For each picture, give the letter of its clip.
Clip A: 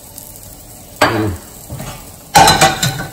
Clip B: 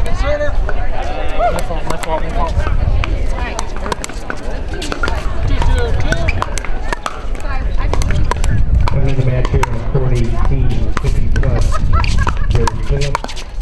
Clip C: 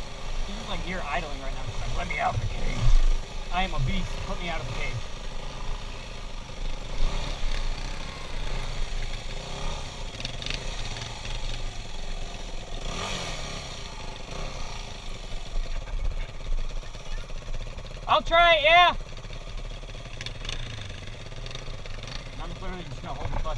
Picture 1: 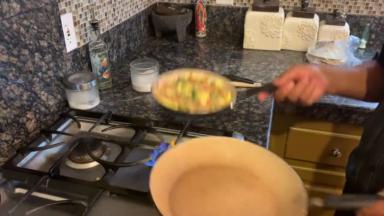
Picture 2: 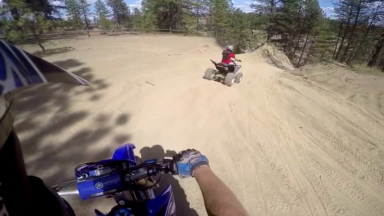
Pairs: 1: A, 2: C